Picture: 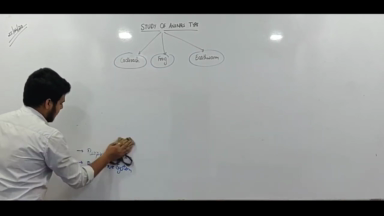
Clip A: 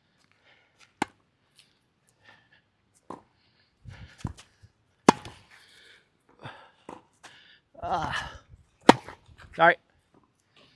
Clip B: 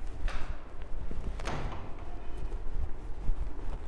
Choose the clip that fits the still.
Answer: B